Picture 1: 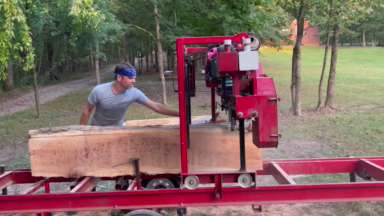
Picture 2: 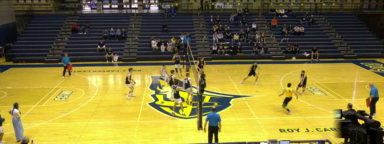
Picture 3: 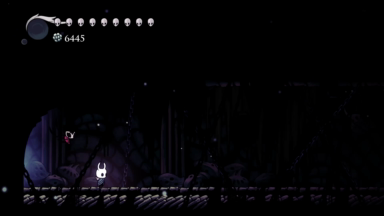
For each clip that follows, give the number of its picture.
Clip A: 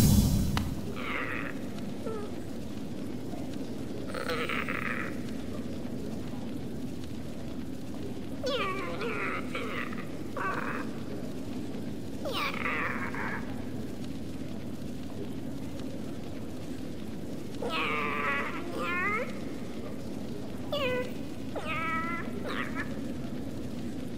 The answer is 3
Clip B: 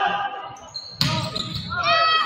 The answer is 2